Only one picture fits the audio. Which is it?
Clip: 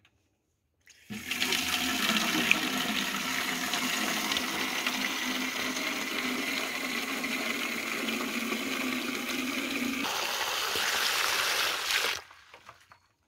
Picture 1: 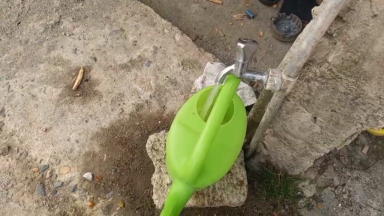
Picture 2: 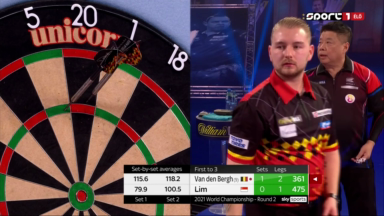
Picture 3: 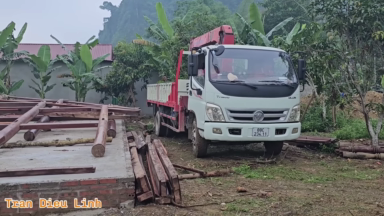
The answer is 1